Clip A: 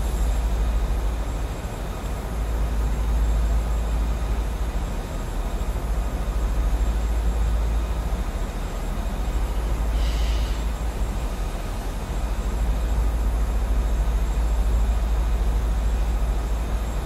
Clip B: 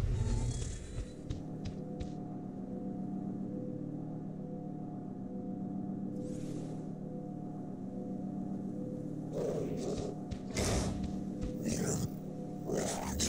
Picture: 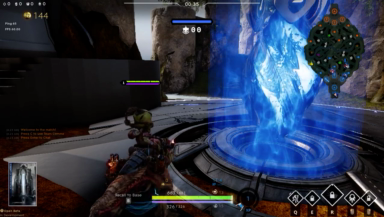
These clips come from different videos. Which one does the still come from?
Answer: B